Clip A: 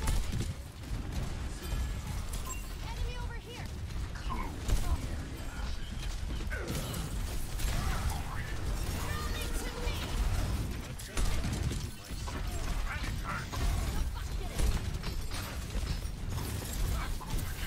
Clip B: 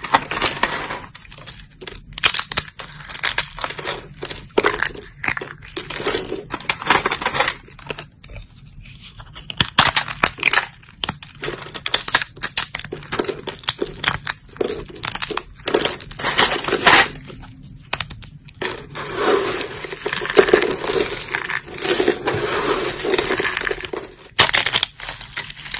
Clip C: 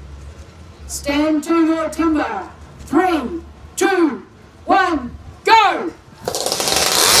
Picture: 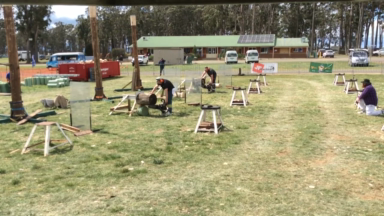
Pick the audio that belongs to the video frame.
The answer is C